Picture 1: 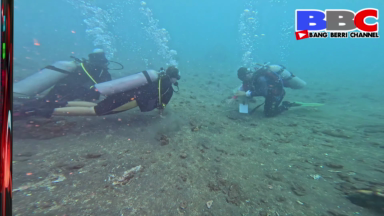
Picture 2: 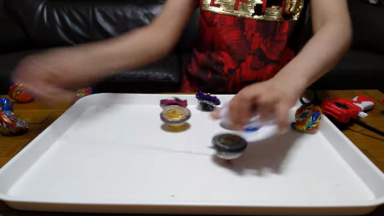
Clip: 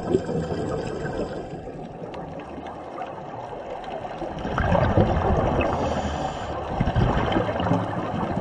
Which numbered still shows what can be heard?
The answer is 1